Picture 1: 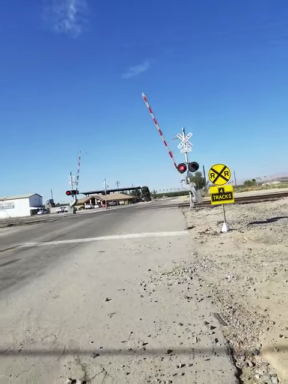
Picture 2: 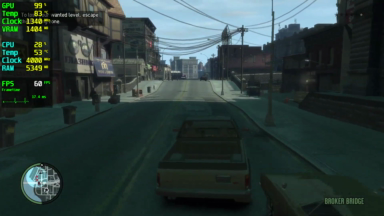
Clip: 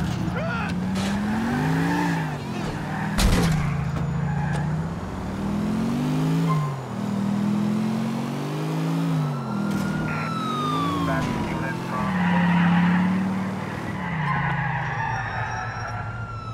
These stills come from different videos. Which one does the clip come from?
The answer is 2